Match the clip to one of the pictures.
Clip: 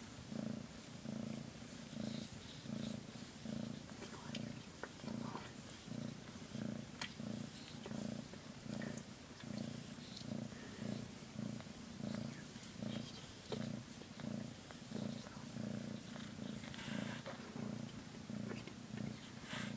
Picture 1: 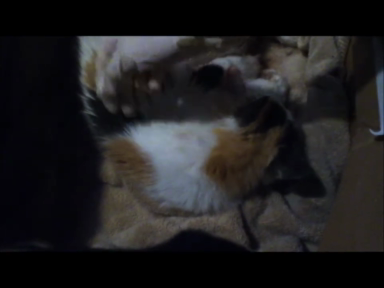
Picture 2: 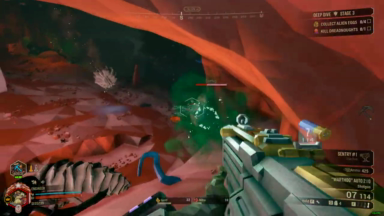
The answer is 1